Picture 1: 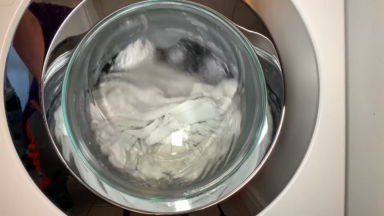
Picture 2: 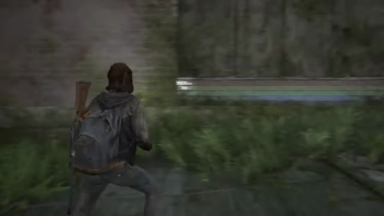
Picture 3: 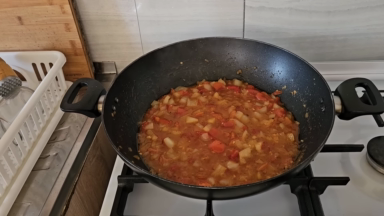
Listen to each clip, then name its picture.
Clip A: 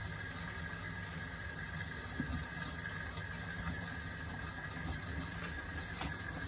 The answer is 1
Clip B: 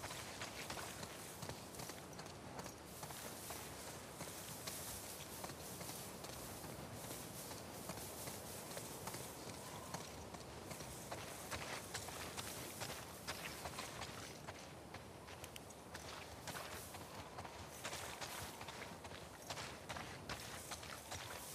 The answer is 2